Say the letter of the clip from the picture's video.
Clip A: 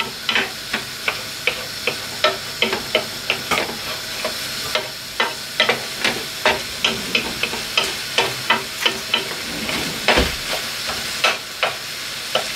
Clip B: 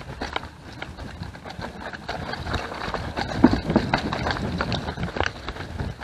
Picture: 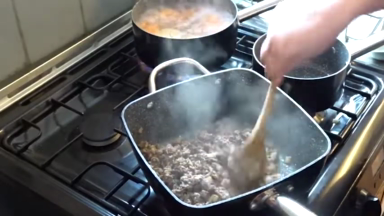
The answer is A